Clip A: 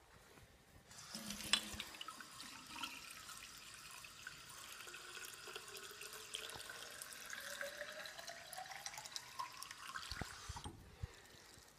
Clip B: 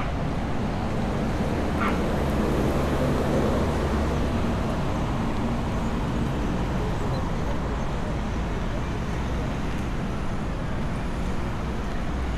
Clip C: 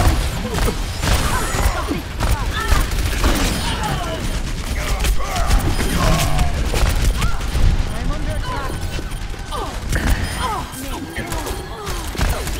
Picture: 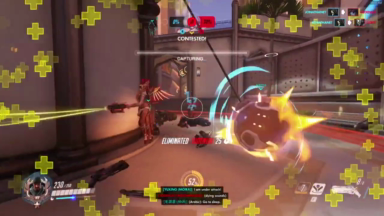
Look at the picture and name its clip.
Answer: C